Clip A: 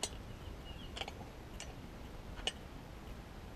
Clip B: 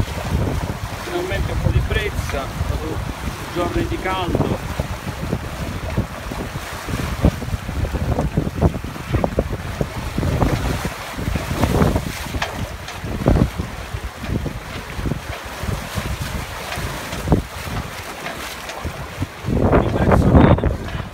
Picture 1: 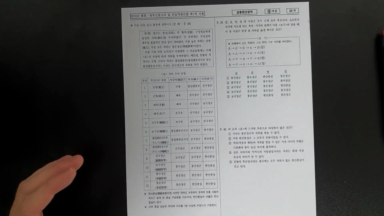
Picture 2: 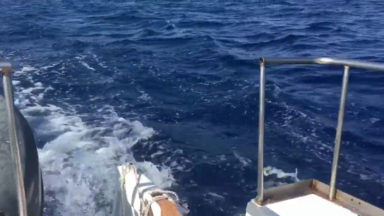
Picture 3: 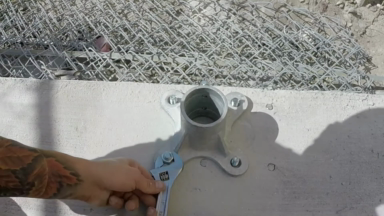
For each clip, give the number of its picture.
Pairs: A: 3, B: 2